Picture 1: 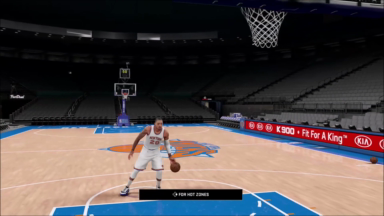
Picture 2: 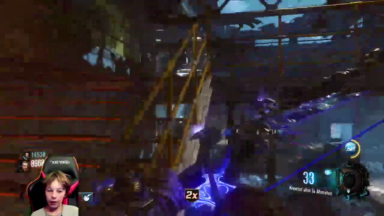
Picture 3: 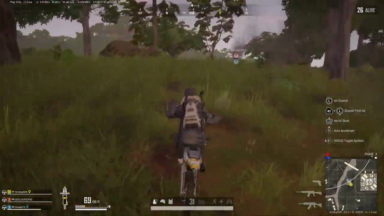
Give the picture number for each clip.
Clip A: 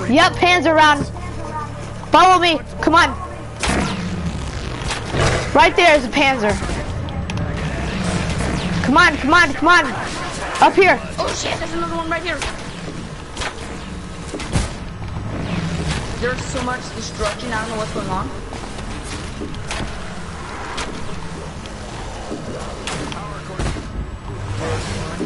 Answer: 2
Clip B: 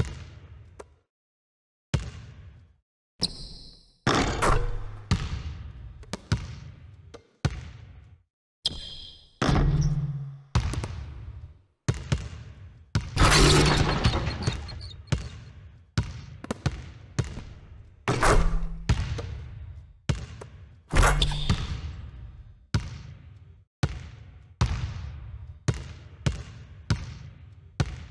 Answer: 1